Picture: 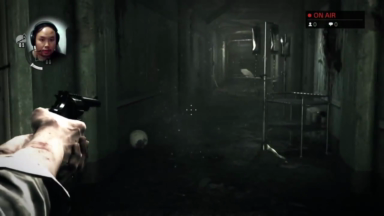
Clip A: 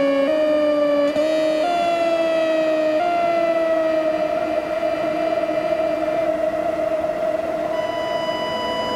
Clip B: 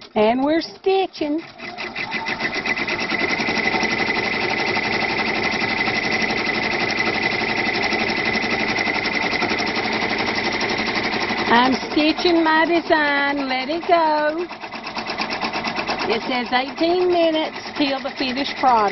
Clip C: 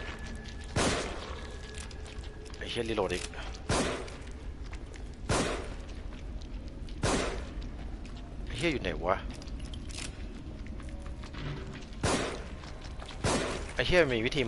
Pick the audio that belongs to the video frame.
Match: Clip C